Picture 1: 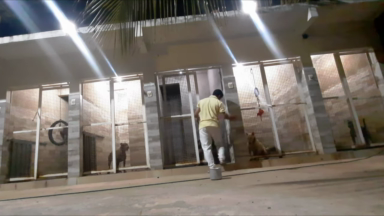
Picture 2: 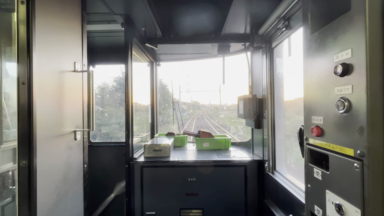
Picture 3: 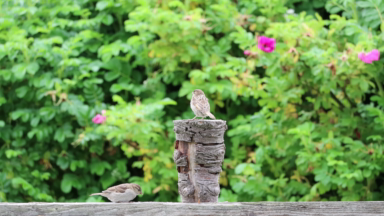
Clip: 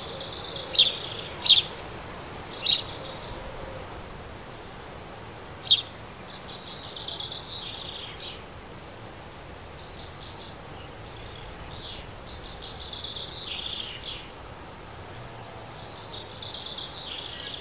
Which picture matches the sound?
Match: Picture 3